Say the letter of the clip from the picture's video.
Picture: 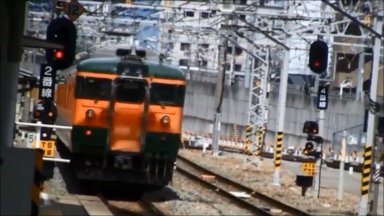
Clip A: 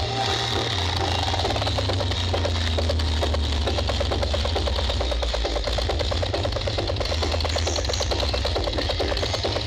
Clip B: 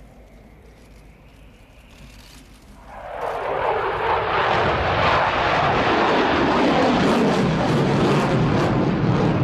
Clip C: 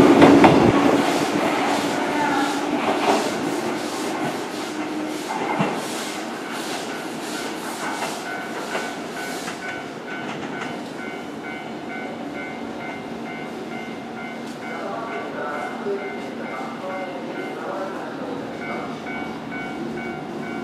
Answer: C